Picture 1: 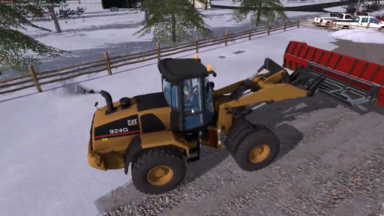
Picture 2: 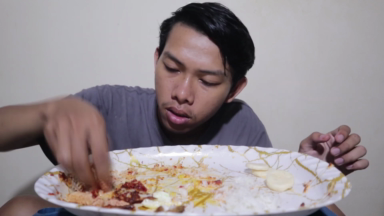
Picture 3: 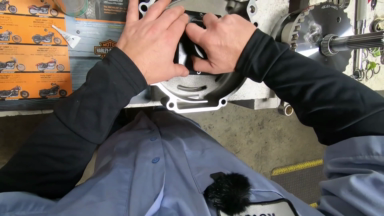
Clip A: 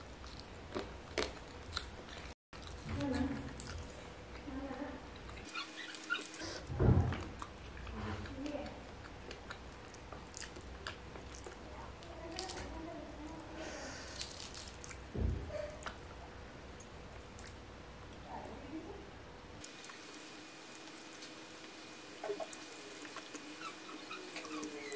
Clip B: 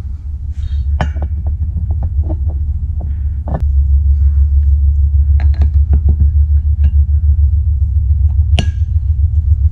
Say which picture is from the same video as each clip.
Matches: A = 2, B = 3